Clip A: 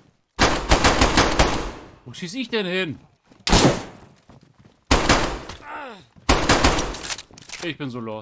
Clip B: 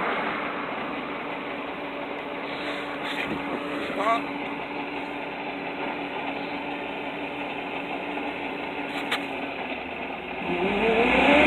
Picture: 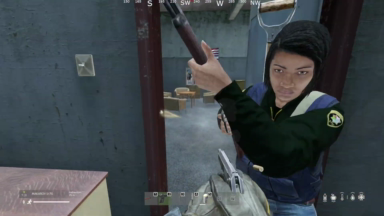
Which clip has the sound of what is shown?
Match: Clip A